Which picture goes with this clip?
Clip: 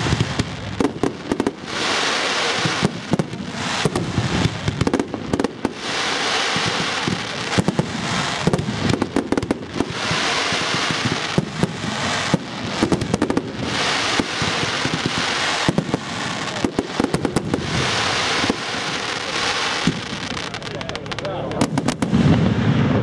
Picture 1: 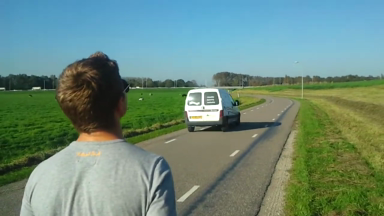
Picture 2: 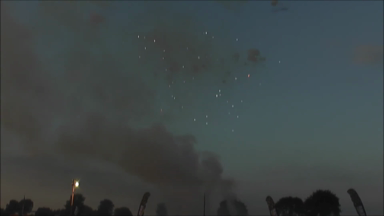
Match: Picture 2